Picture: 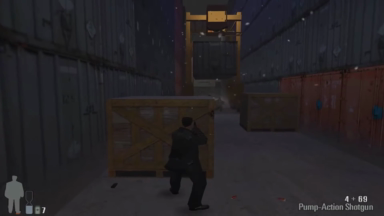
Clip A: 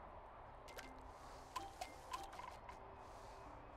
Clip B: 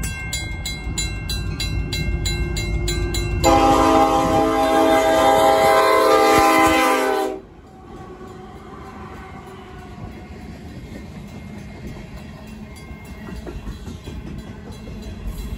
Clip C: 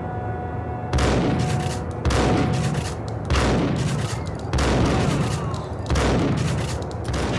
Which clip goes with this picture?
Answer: C